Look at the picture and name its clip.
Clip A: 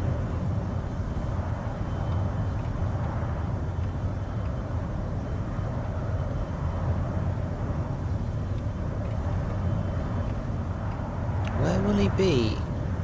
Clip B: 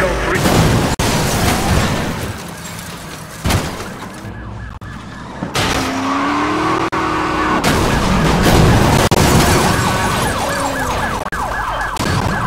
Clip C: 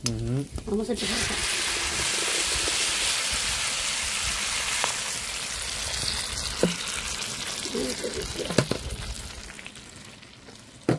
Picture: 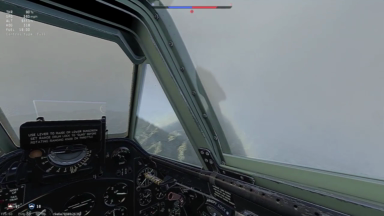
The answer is A